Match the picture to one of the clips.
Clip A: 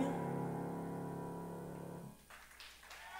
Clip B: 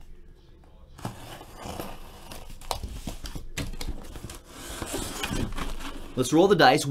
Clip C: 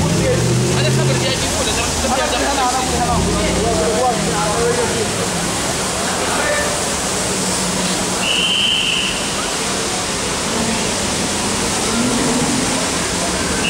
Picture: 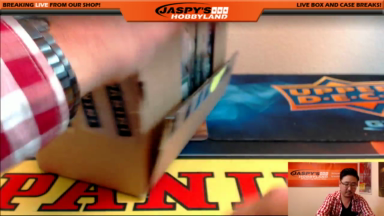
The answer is B